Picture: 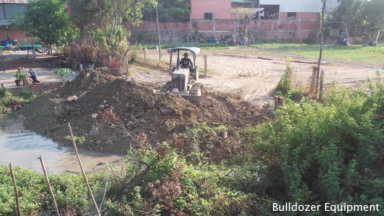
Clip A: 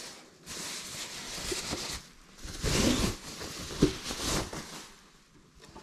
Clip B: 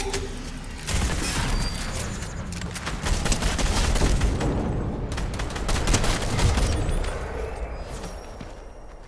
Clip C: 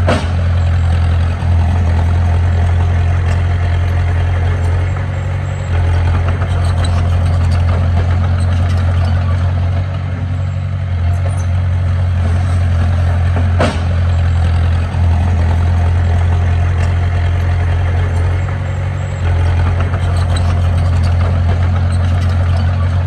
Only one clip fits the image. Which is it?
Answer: C